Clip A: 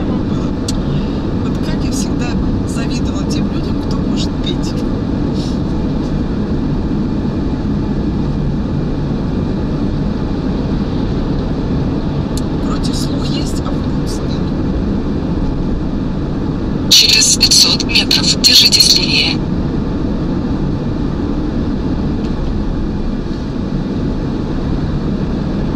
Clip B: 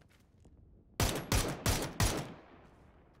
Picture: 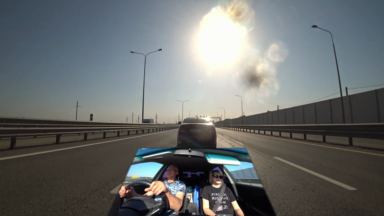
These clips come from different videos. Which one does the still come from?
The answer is A